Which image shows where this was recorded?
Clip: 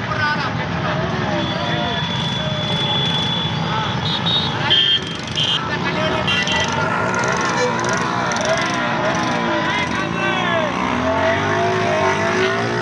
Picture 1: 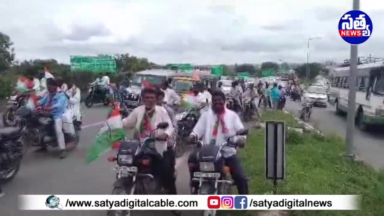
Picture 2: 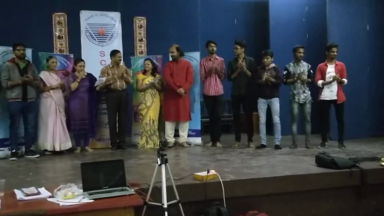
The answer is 1